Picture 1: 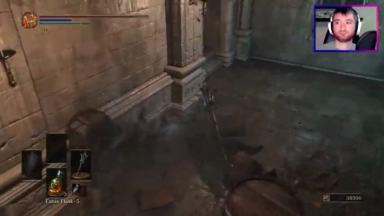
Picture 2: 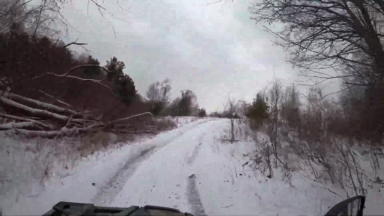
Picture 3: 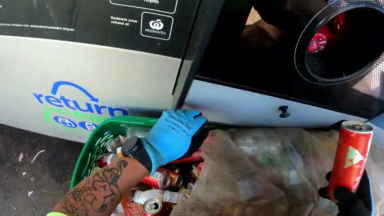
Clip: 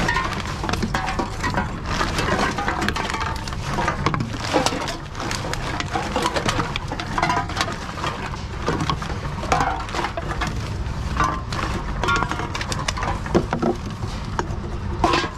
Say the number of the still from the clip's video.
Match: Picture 3